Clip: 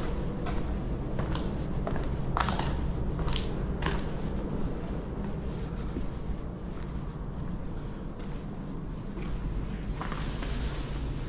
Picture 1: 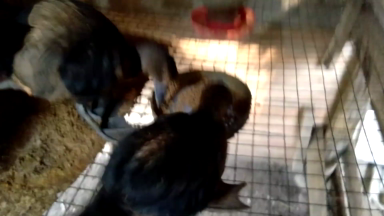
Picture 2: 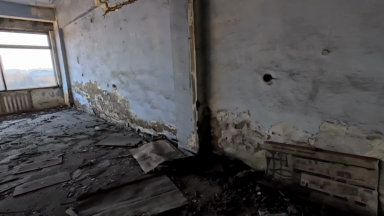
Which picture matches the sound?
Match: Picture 2